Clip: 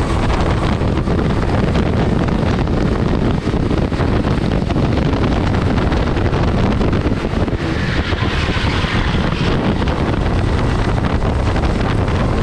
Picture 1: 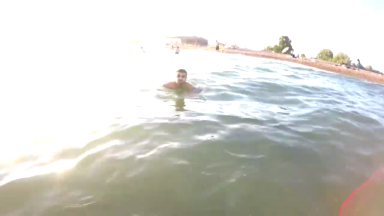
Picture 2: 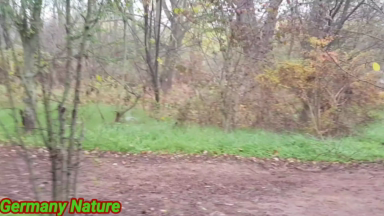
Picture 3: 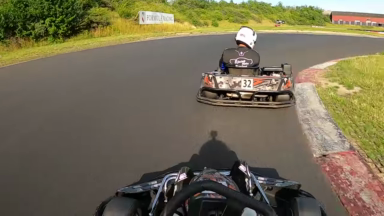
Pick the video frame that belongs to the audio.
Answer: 3